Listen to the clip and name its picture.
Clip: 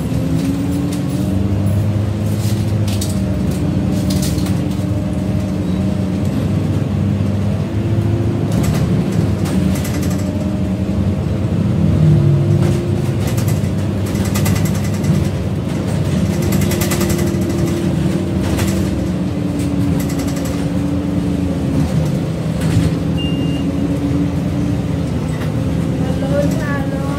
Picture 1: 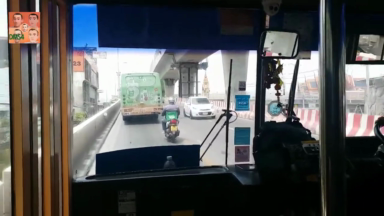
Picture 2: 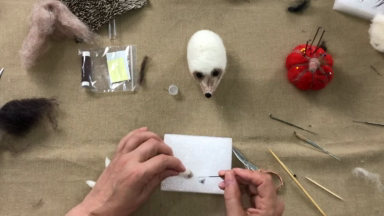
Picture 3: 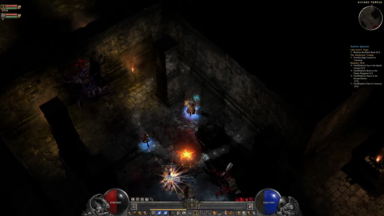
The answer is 1